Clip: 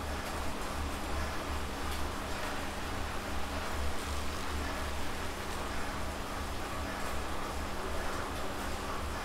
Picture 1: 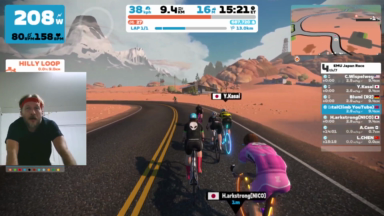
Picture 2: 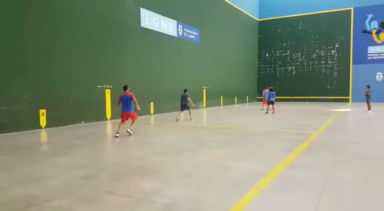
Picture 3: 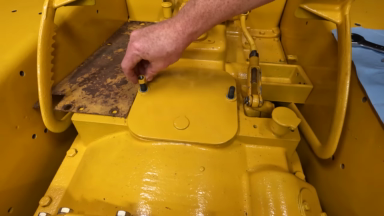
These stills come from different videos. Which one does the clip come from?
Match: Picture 1